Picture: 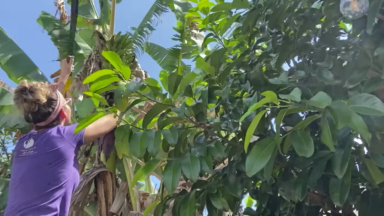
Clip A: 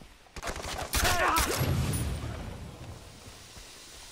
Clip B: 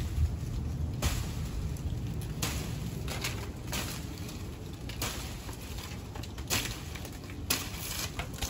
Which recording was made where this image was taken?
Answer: B